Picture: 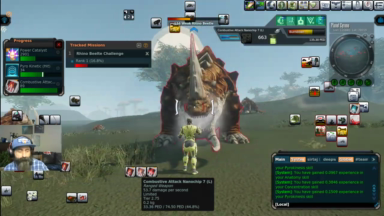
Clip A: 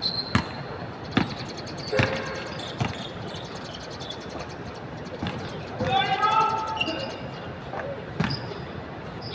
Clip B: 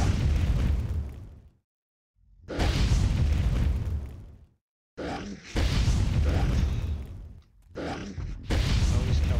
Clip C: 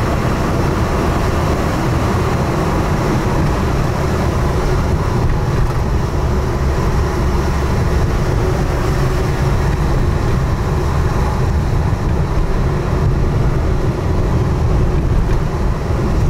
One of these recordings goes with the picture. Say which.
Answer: B